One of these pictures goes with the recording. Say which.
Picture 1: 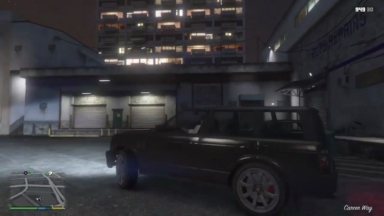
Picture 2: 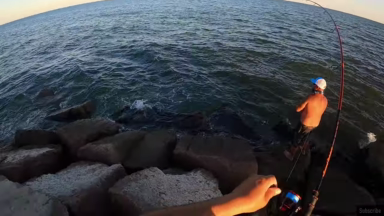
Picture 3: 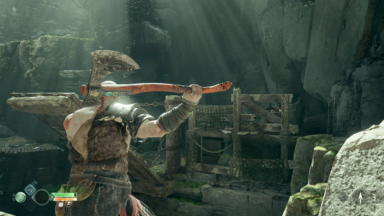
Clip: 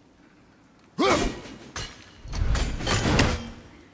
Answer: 3